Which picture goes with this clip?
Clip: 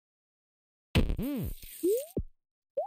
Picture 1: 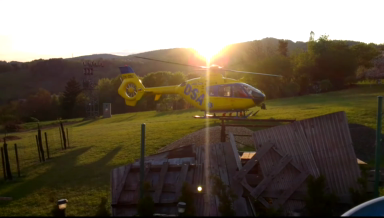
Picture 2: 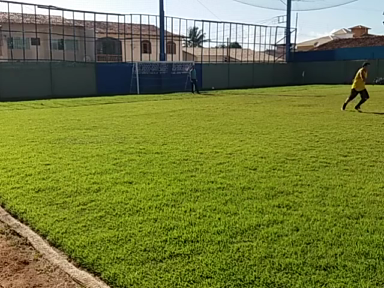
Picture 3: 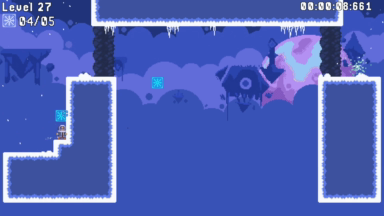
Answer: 3